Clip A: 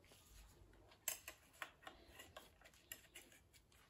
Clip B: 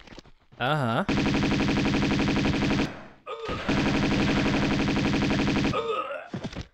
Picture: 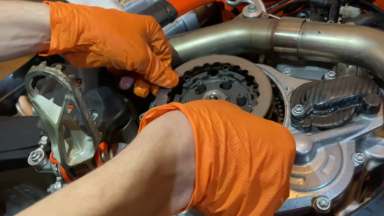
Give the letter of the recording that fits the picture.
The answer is A